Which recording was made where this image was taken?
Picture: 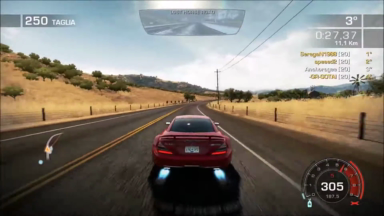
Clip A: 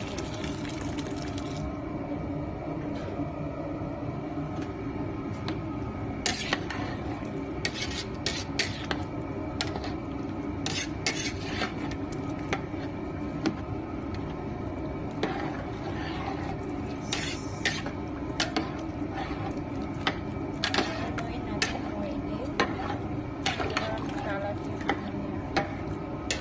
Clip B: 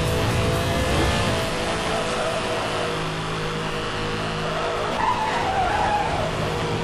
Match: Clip B